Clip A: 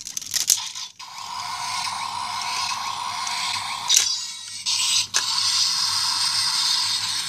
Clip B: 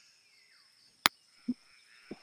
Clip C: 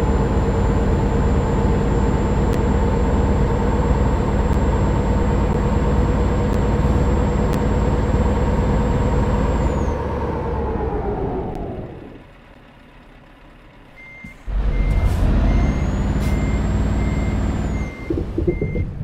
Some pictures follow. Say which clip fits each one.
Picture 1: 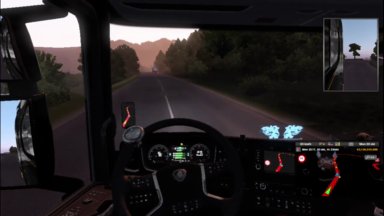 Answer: C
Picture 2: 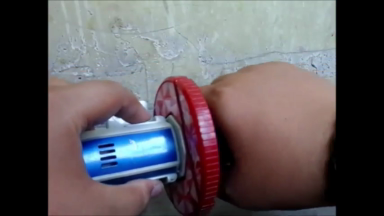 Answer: A